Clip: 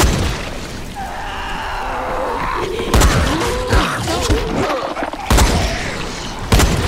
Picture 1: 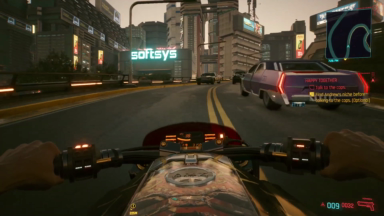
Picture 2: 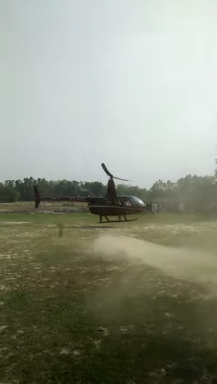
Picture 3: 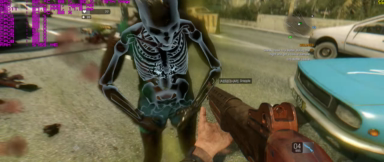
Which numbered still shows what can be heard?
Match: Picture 3